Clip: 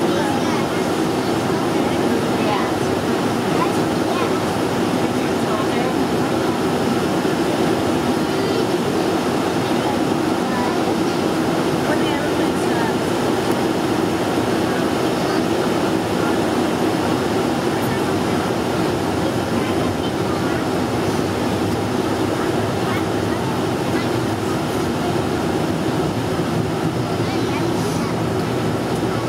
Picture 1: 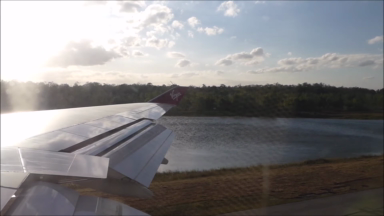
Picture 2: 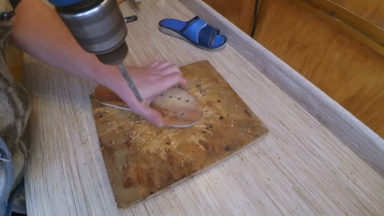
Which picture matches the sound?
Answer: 1